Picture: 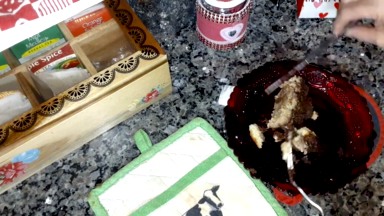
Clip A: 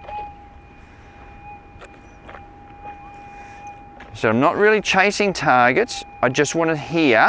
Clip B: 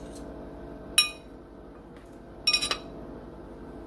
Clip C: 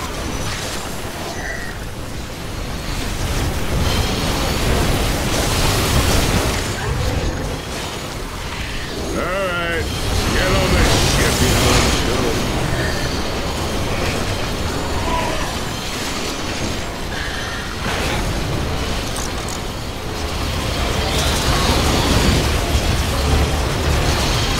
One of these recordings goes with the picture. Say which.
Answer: B